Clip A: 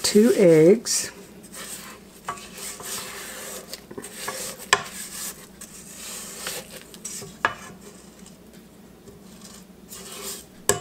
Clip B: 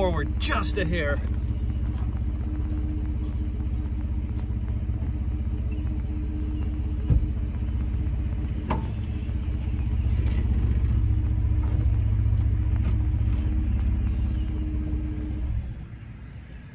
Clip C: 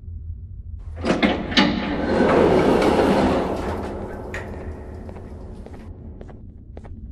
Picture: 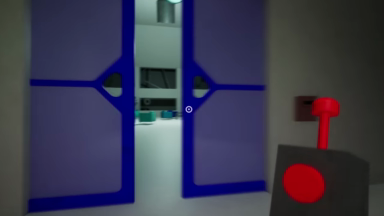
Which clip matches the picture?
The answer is C